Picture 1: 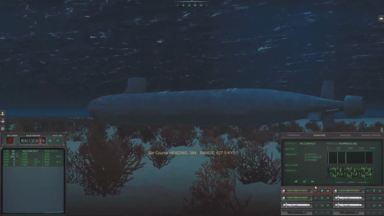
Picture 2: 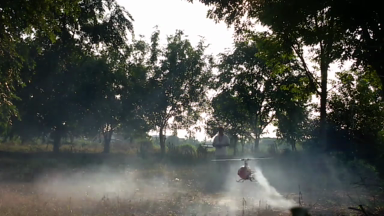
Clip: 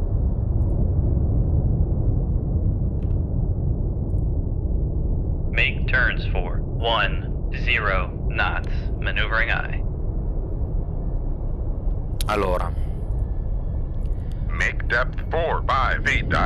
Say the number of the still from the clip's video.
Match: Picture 1